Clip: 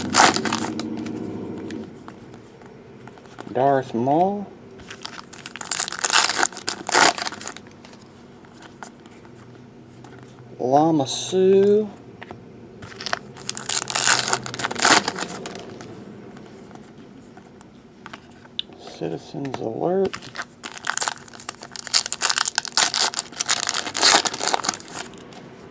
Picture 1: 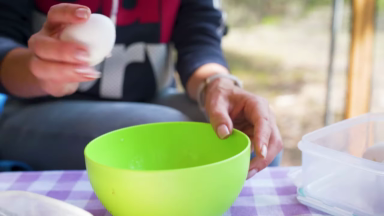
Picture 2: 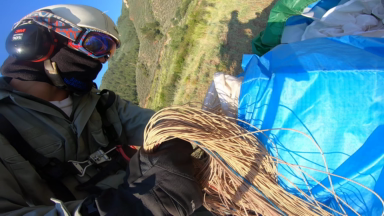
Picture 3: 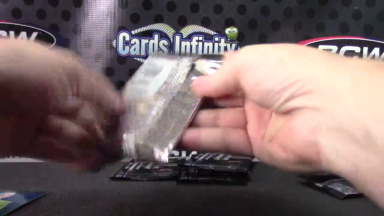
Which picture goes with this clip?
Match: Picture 3